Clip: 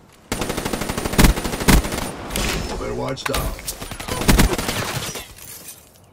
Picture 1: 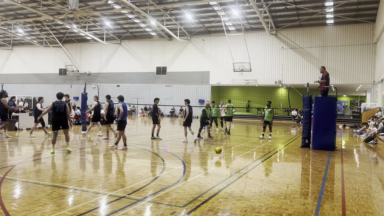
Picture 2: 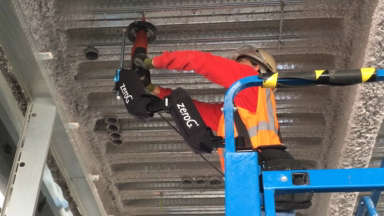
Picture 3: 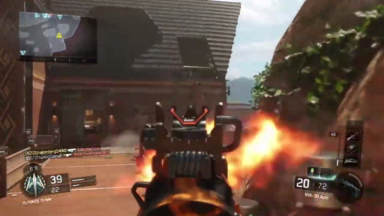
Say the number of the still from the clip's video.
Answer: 3